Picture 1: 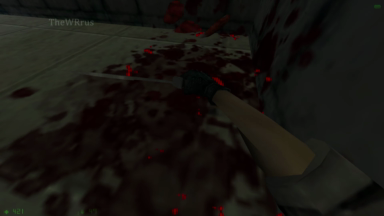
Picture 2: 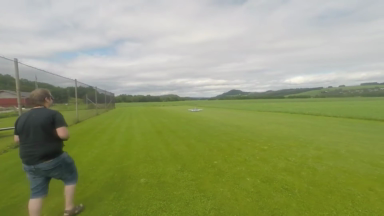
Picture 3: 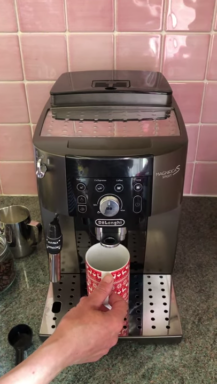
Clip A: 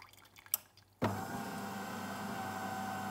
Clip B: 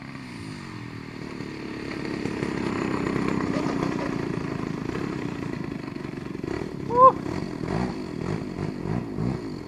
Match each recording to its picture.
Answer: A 3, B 2